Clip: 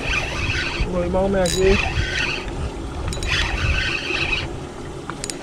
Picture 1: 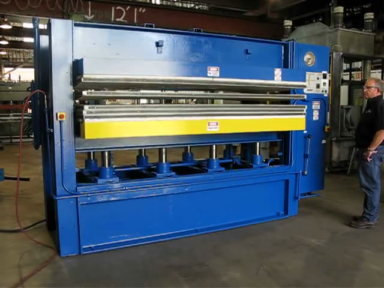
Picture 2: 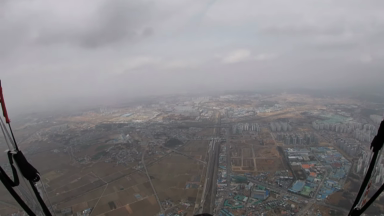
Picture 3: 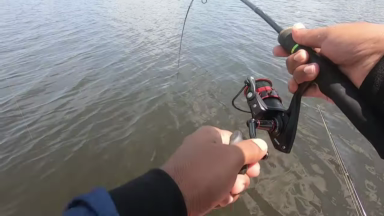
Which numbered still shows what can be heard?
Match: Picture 3